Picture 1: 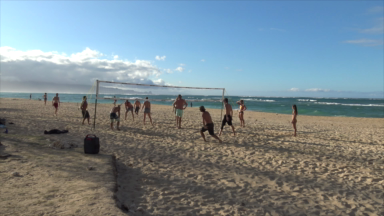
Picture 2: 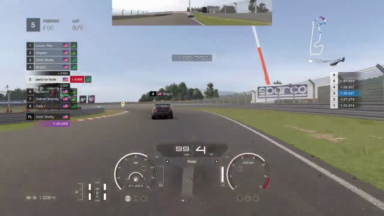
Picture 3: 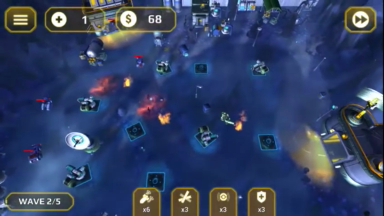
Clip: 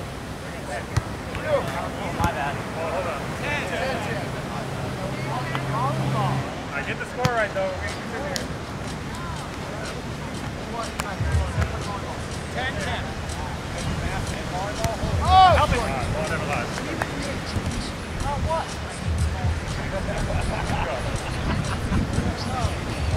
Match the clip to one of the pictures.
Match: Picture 1